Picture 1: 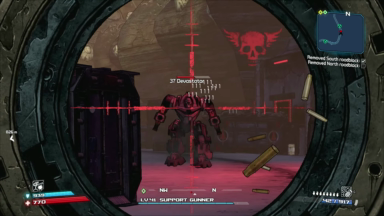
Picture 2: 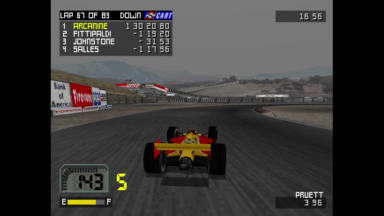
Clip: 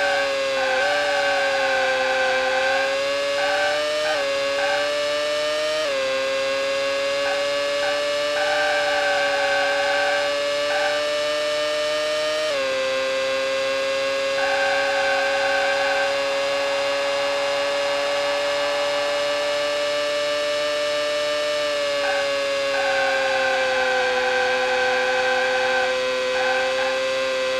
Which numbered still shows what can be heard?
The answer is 2